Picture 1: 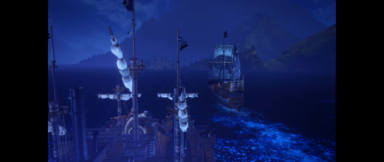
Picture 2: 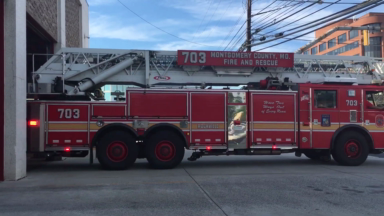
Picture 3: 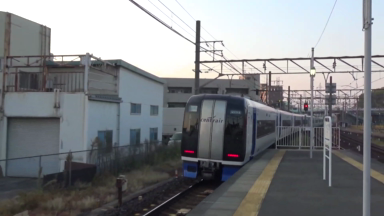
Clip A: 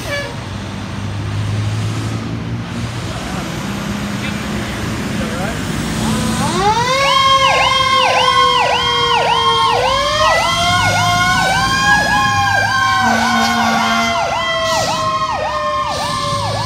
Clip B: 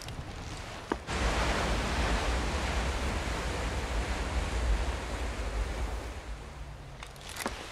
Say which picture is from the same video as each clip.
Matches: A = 2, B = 1